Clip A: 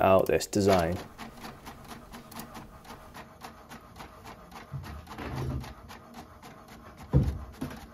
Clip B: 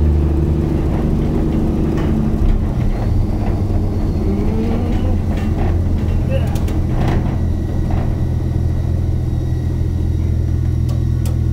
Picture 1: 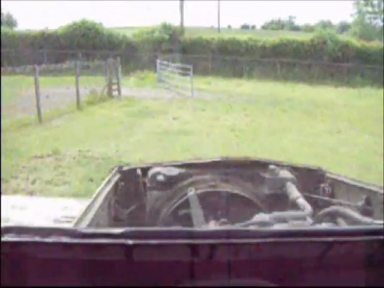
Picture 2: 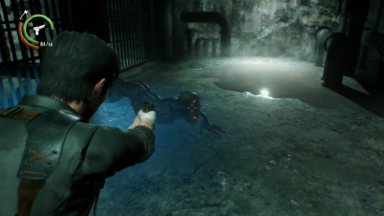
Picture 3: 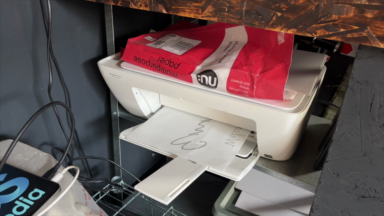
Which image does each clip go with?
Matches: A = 3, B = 1